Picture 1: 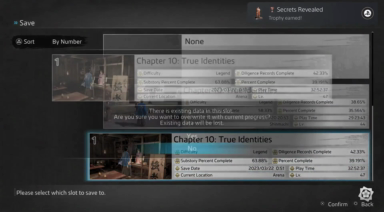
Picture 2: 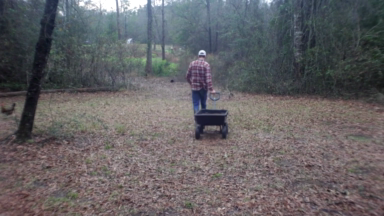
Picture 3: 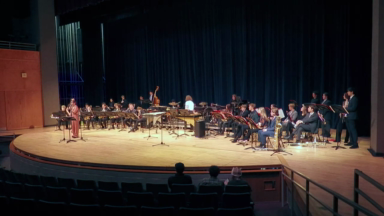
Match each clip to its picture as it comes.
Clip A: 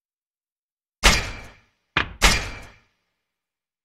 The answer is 1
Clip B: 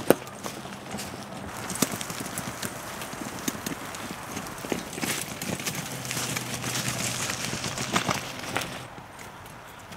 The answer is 2